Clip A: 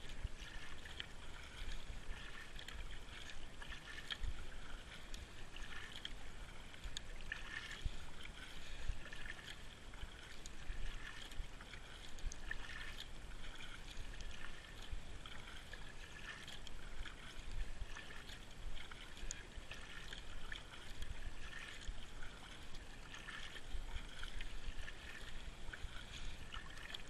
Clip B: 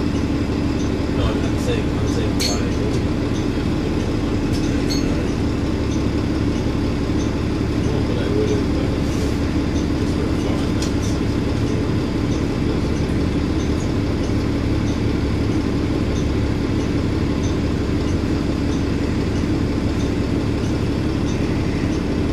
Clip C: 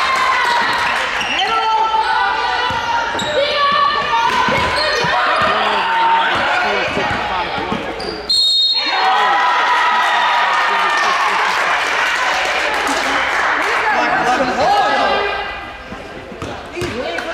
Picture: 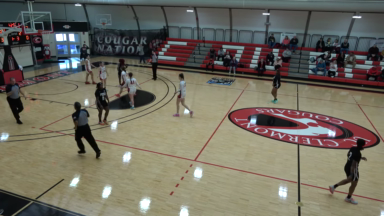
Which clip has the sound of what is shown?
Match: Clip C